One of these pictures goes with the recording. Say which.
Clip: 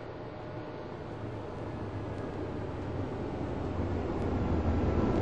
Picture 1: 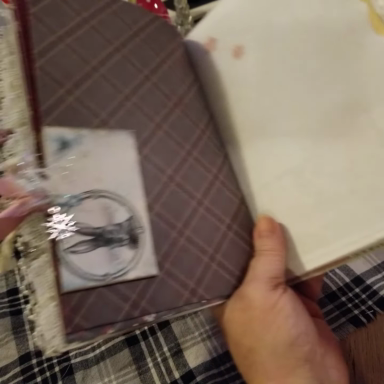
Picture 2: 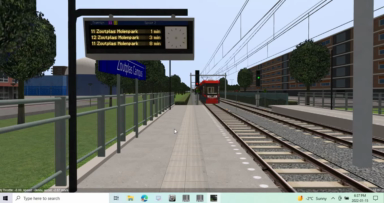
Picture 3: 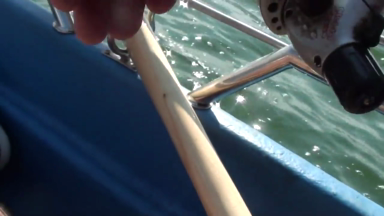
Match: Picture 2